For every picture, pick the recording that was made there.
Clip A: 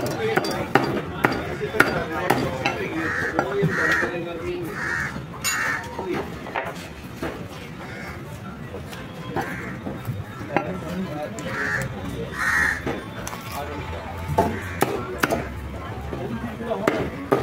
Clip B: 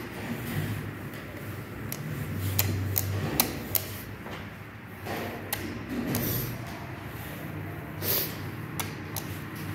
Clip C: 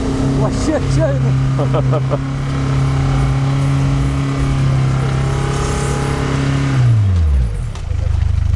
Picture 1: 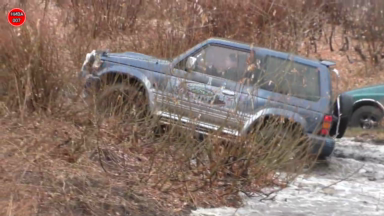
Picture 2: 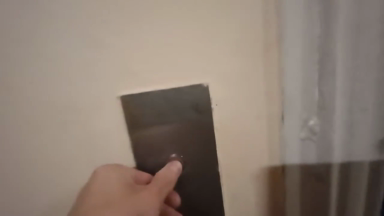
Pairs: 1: C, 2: B